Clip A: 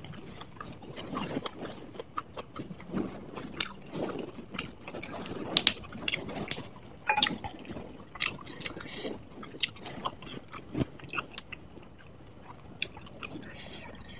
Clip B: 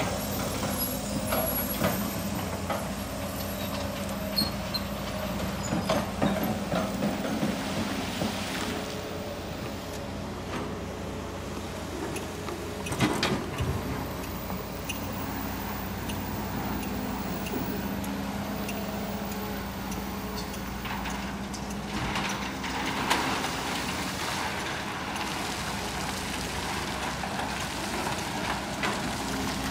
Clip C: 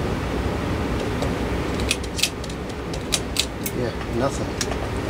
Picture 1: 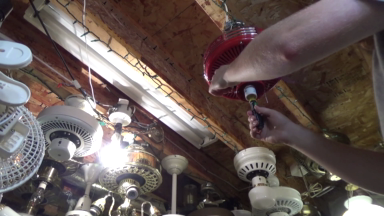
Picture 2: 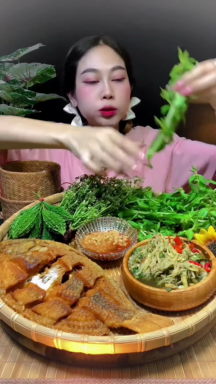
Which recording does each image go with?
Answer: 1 C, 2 A